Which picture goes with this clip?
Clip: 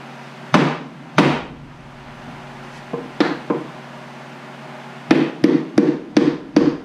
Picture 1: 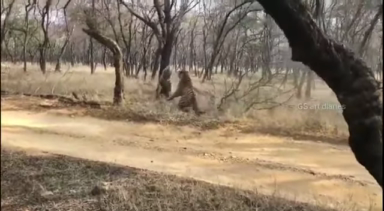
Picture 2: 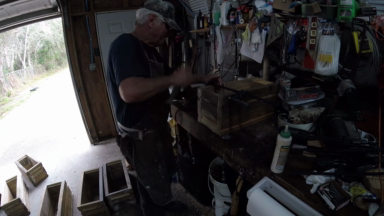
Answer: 2